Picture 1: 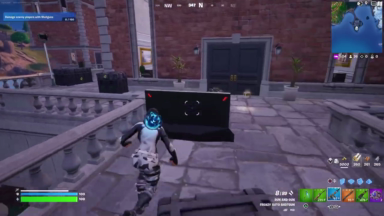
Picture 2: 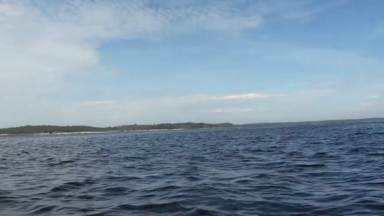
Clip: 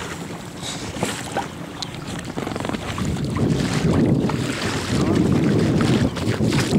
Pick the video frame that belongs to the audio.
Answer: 2